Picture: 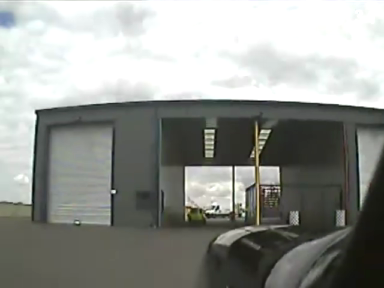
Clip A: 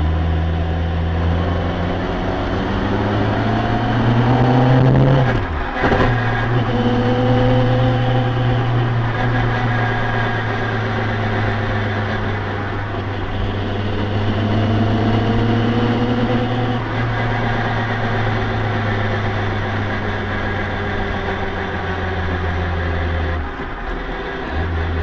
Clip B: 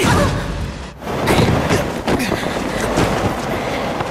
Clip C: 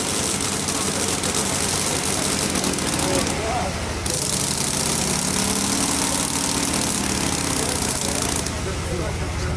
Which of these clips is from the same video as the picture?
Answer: A